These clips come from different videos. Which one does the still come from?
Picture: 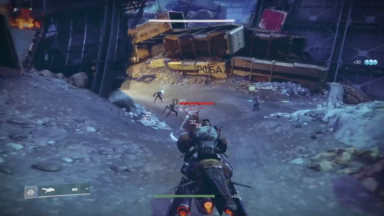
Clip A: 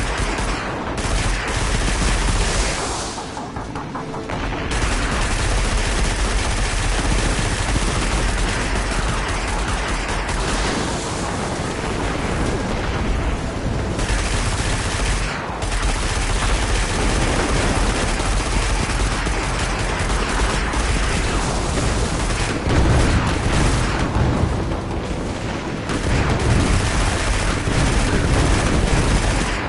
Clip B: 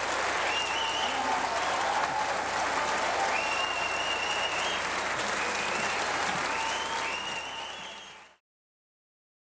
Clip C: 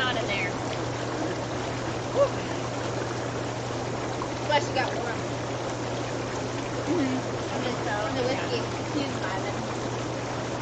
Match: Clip A